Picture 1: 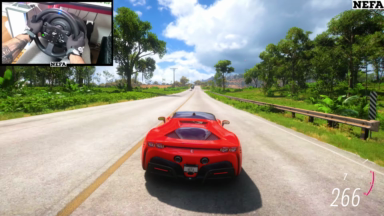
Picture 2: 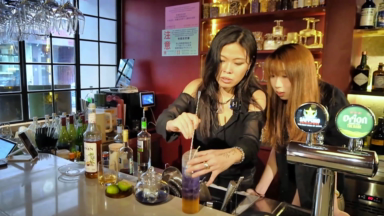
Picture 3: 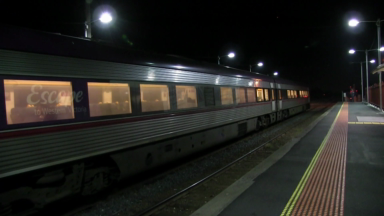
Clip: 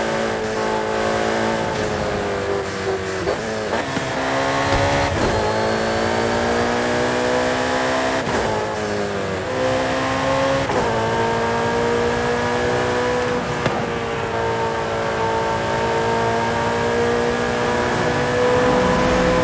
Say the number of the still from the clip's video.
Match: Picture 1